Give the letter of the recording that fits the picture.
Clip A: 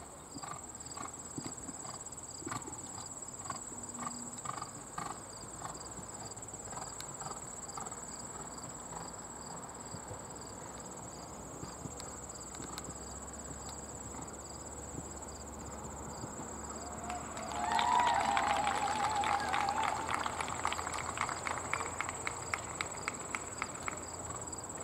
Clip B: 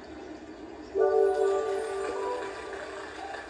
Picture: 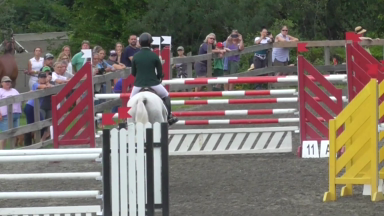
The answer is A